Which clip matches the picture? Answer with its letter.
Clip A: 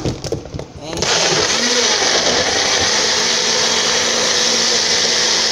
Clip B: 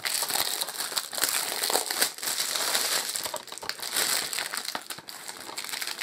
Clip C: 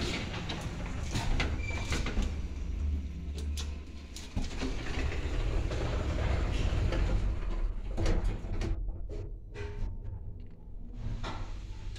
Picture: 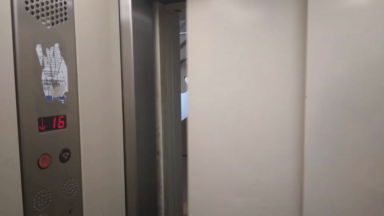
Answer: C